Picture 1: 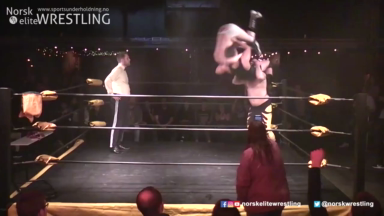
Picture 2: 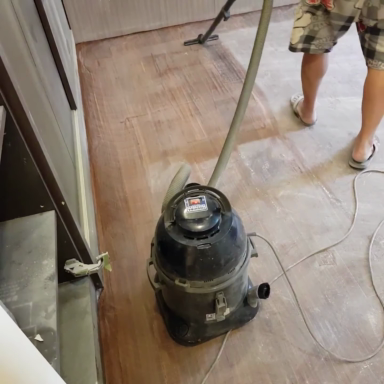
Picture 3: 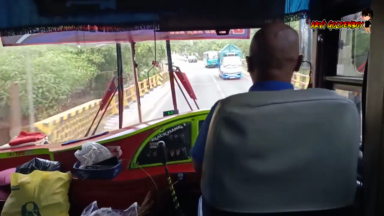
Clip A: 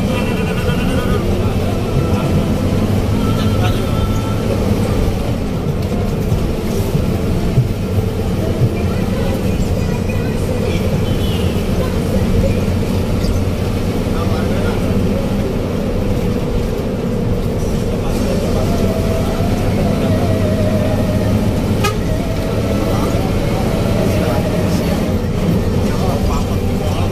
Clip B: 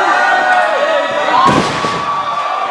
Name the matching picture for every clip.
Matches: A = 3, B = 1